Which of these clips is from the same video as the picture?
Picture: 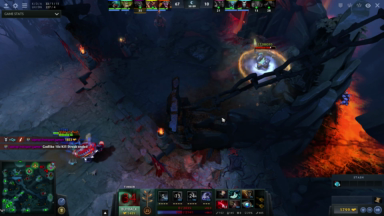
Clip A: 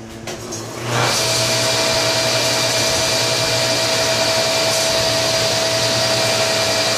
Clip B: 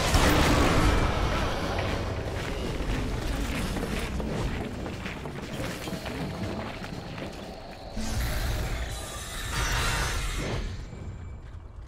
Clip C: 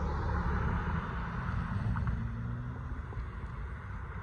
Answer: B